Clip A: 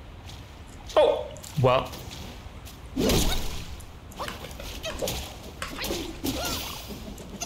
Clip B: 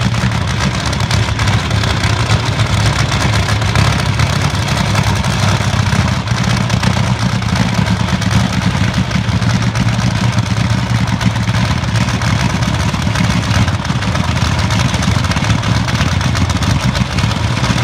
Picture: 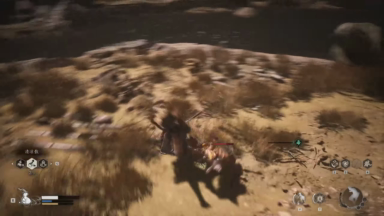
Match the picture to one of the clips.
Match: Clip A